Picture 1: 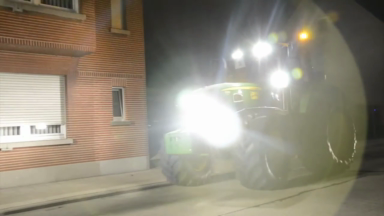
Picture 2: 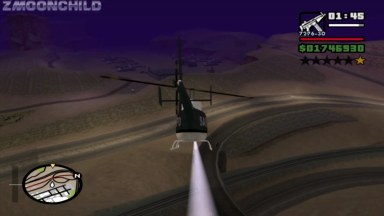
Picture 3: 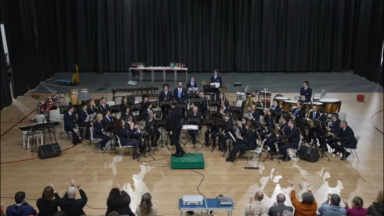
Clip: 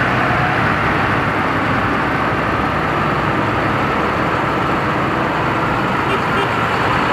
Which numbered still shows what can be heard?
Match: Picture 1